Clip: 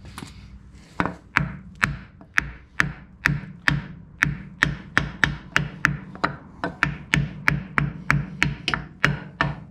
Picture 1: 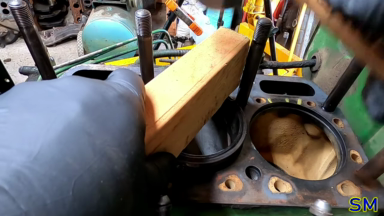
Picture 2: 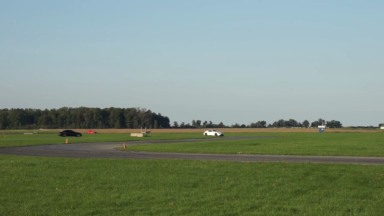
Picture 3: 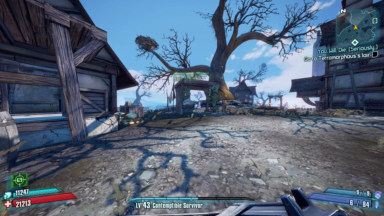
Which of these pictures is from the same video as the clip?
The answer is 1